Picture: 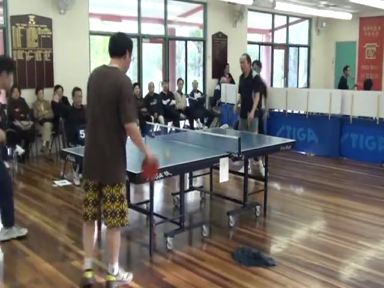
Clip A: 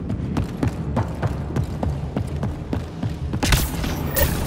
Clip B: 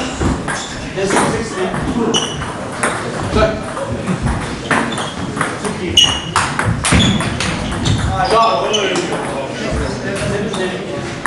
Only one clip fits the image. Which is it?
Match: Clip B